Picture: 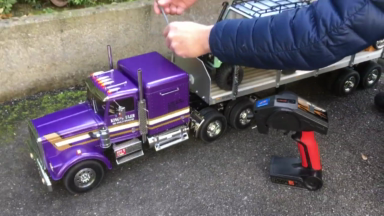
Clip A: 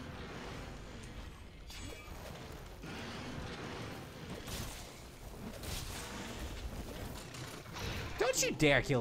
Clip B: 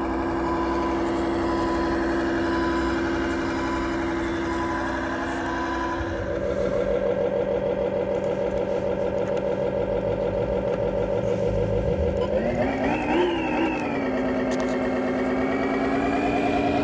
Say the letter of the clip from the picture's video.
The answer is B